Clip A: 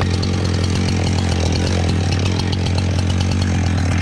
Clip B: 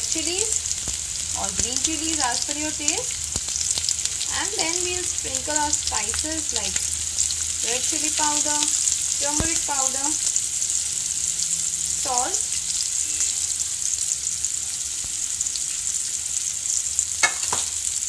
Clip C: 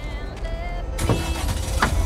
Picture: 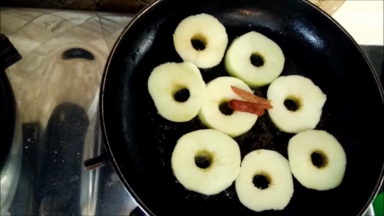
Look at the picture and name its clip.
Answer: B